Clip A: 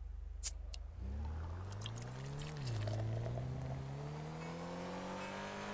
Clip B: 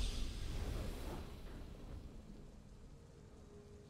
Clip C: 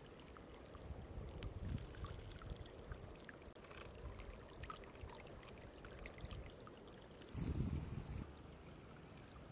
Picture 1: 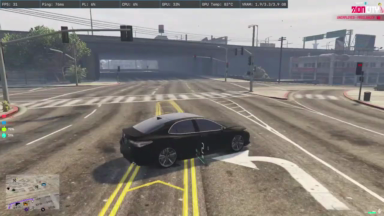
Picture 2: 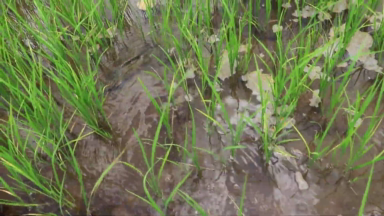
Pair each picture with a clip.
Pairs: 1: A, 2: C